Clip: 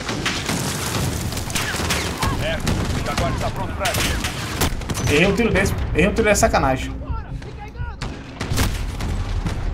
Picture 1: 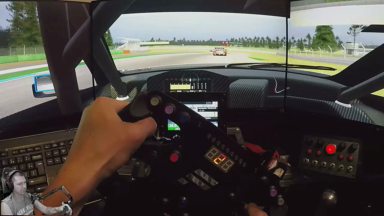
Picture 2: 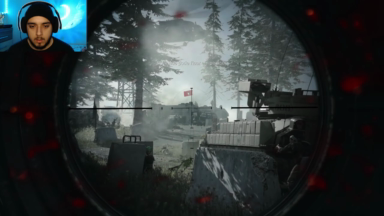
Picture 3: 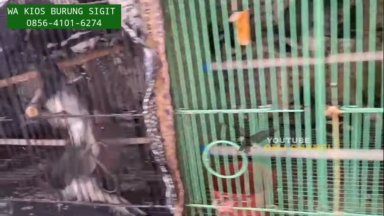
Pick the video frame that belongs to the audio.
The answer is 2